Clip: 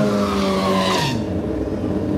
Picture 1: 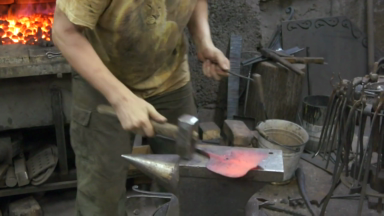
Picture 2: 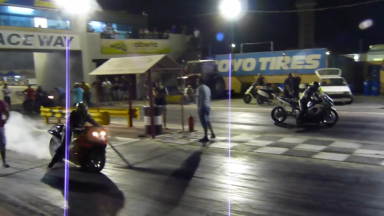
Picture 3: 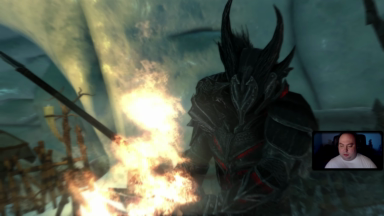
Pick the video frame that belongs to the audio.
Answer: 2